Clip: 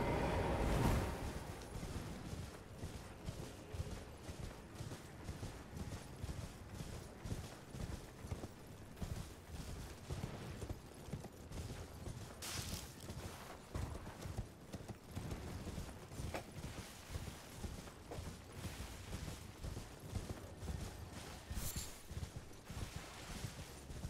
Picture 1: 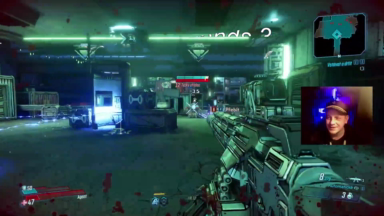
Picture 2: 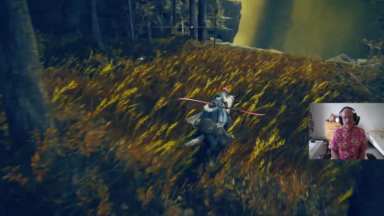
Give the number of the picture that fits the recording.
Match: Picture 2